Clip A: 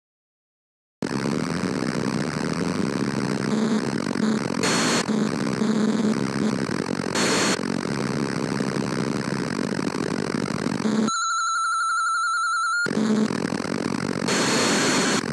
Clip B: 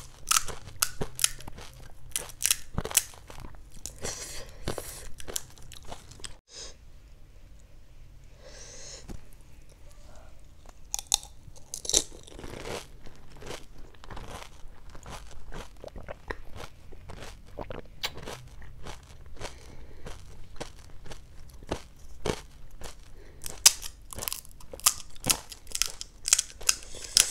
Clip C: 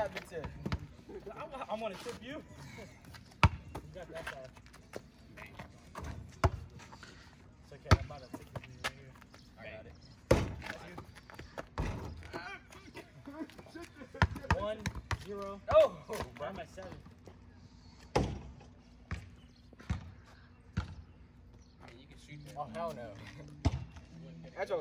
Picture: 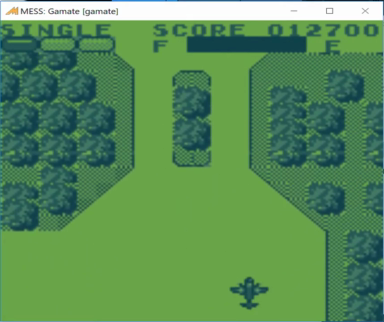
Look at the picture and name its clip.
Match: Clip A